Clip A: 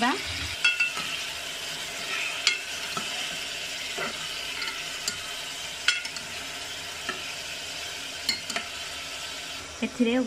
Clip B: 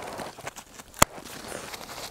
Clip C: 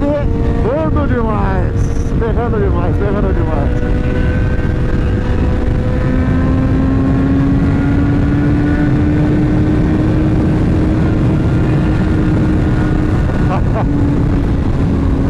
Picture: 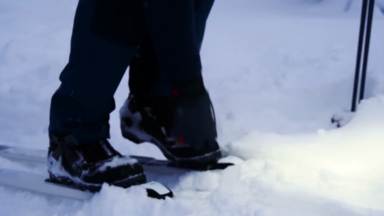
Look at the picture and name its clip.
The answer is B